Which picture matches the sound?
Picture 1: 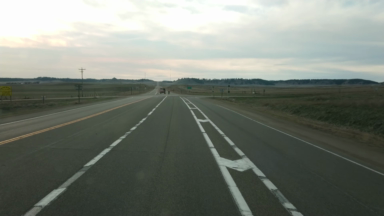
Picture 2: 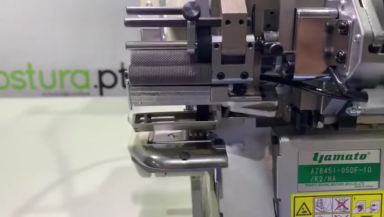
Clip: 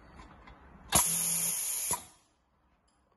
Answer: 2